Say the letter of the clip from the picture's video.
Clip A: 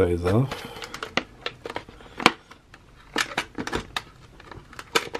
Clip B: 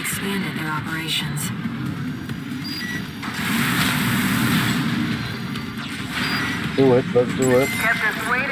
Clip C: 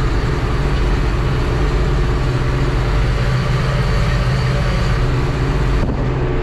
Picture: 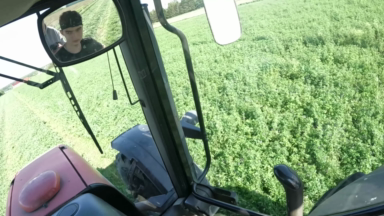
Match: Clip C